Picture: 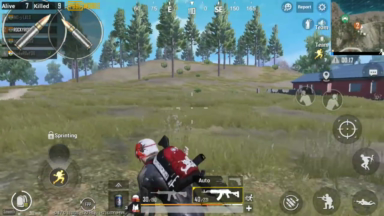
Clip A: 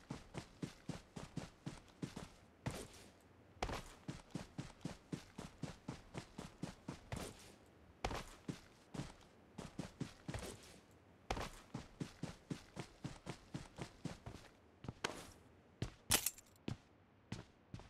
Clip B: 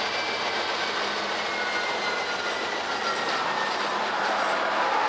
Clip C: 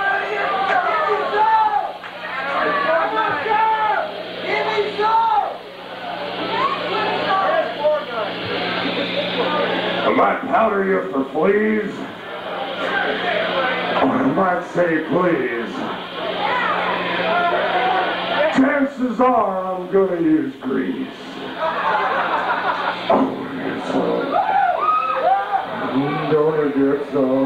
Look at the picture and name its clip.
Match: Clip A